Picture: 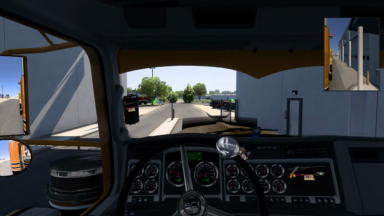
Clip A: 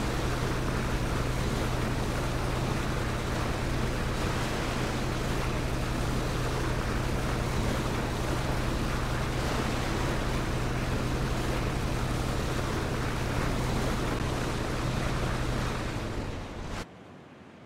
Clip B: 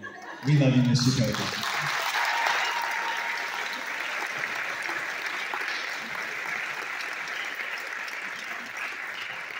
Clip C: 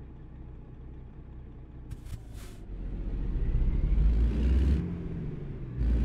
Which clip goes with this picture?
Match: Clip C